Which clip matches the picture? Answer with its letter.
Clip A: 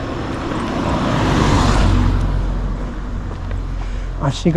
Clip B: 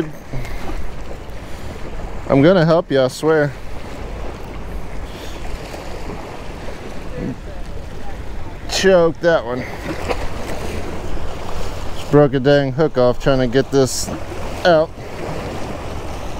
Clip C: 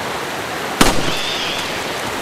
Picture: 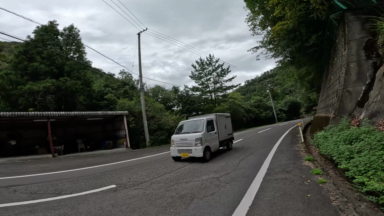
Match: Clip A